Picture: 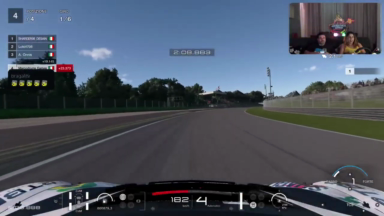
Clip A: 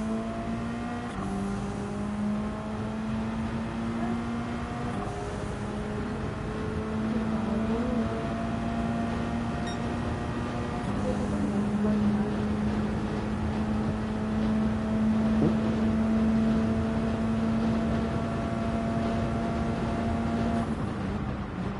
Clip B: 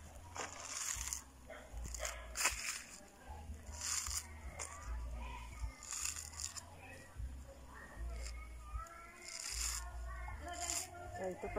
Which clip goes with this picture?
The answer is A